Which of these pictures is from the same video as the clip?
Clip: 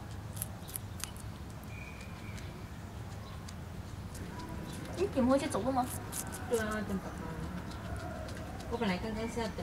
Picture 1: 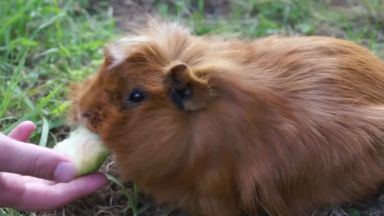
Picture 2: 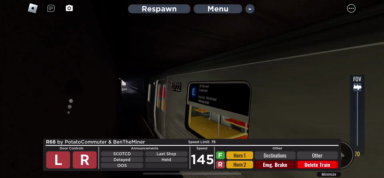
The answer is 1